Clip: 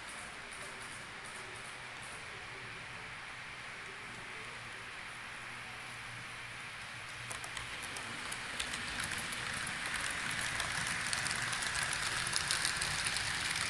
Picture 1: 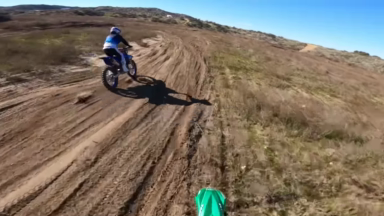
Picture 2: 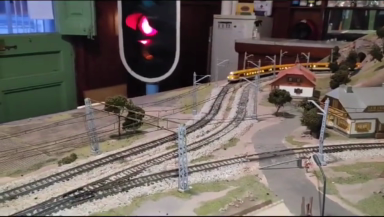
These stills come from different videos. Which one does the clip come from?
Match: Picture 2